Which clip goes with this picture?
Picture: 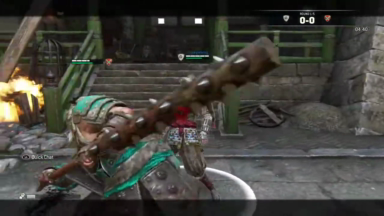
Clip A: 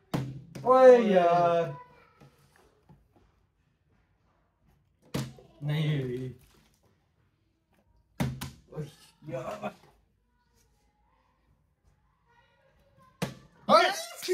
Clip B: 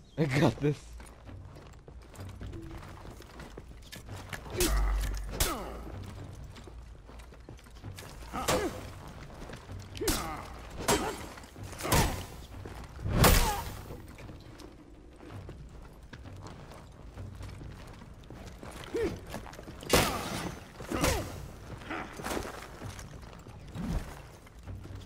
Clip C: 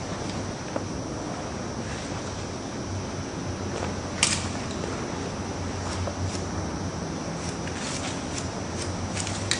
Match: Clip B